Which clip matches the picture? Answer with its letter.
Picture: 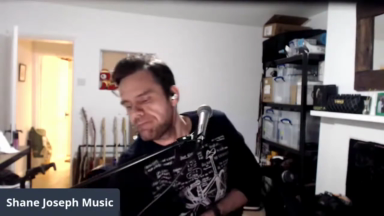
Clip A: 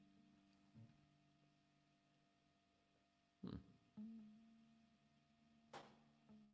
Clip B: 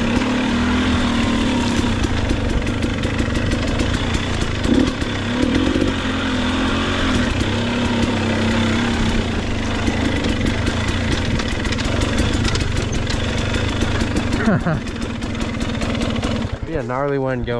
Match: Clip A